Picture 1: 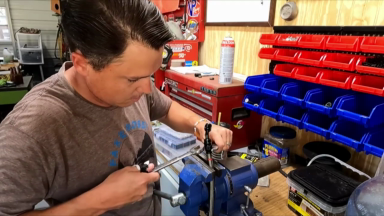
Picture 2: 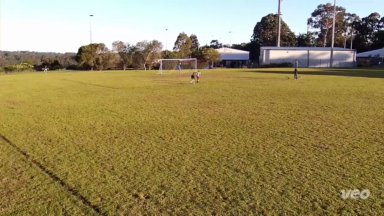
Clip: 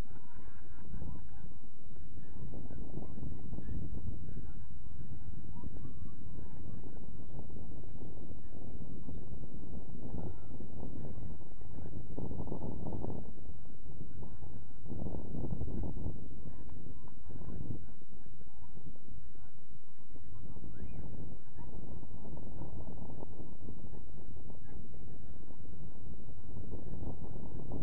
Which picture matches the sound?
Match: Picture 2